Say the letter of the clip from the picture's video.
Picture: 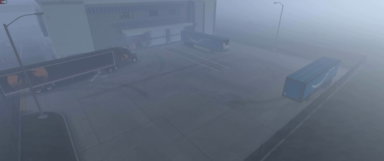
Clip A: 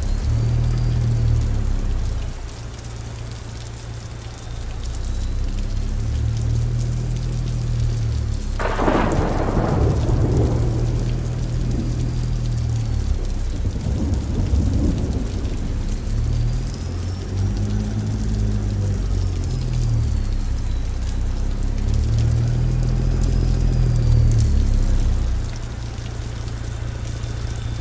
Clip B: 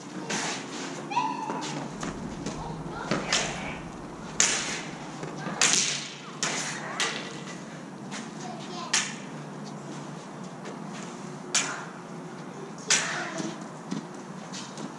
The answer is A